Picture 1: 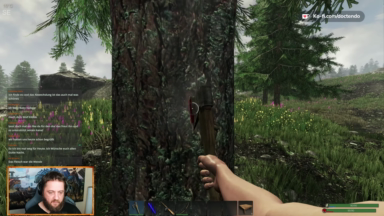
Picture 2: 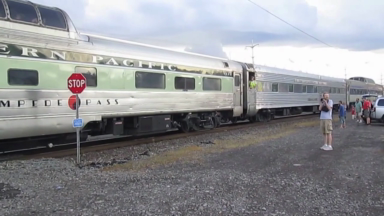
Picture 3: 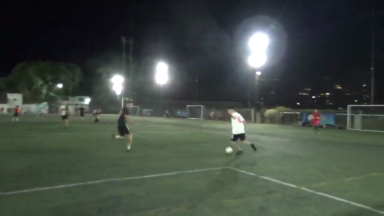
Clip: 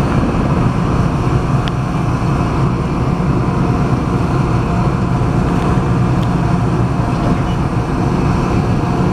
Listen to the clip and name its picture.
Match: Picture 2